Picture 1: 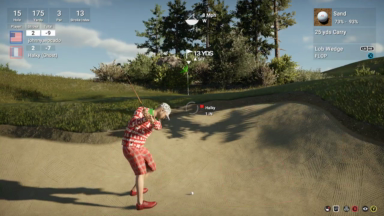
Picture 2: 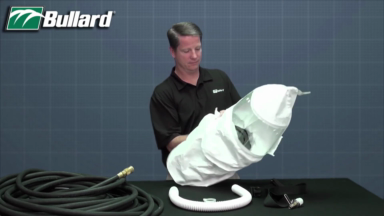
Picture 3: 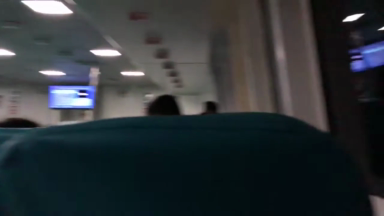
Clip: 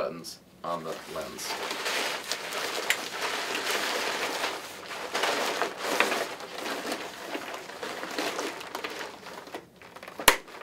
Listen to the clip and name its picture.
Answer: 2